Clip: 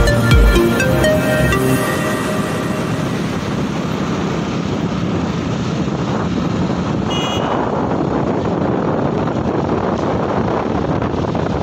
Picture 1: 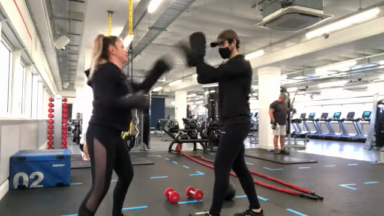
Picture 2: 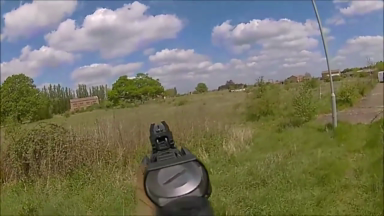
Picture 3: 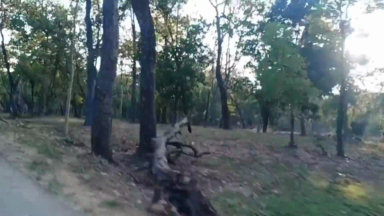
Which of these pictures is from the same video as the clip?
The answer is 3